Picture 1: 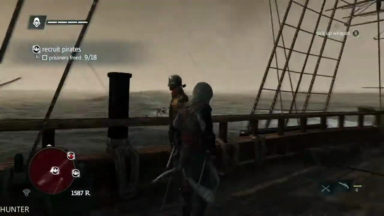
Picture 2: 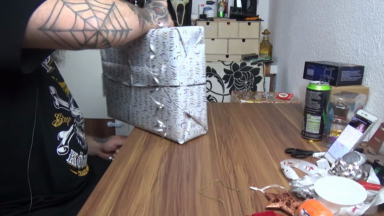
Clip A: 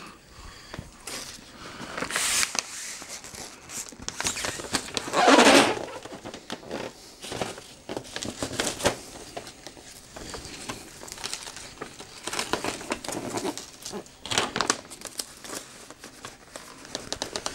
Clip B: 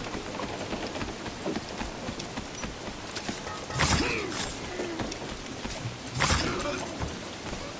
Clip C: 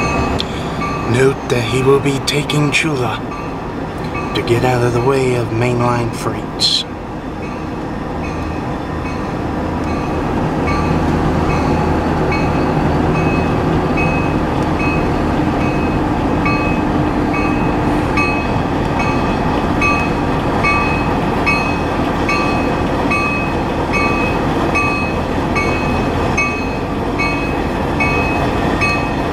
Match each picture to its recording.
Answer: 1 B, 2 A